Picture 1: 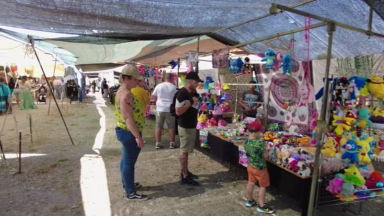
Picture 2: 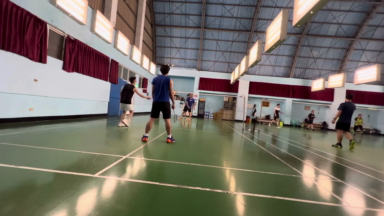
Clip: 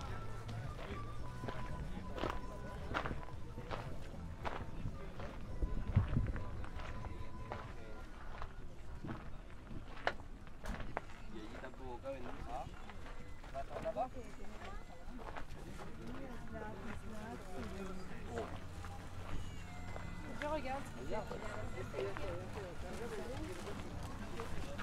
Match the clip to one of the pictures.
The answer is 1